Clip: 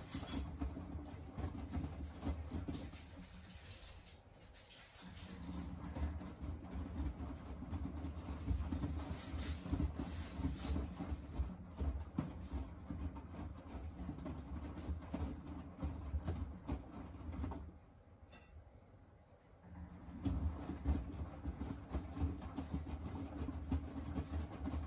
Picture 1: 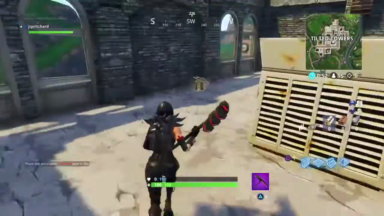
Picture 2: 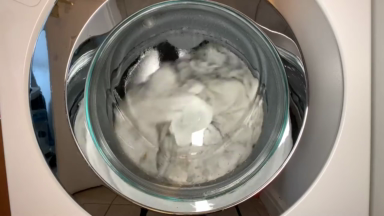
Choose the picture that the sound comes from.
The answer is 2